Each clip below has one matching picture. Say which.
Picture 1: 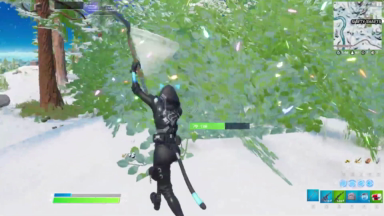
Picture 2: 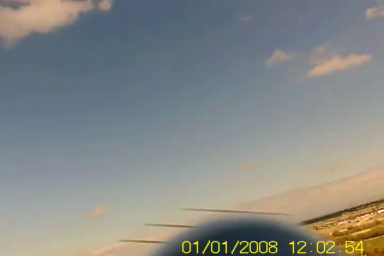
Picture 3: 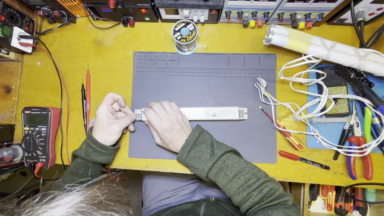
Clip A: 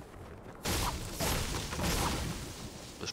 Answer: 1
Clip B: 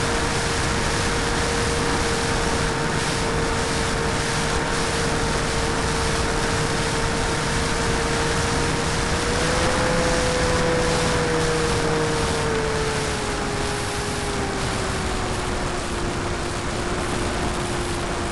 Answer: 2